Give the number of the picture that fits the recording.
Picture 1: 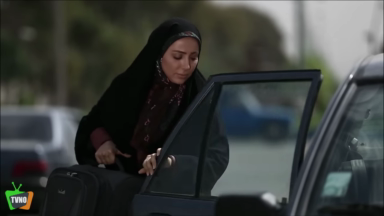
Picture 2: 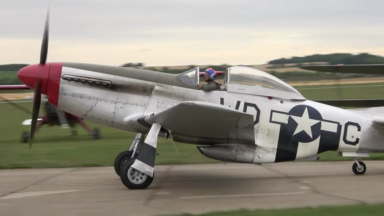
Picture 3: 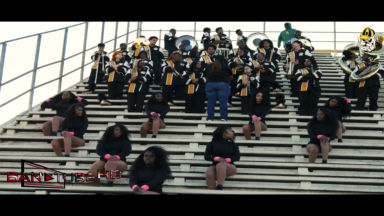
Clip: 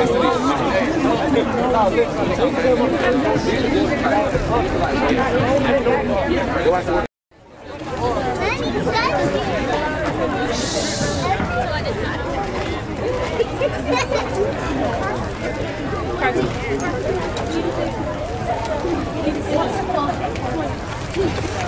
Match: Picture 3